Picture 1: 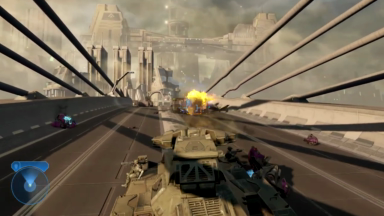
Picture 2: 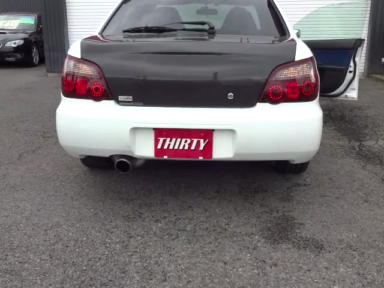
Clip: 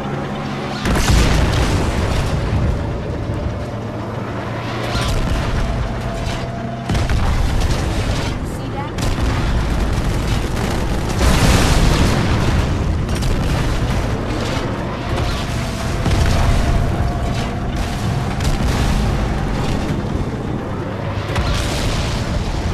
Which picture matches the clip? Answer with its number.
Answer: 1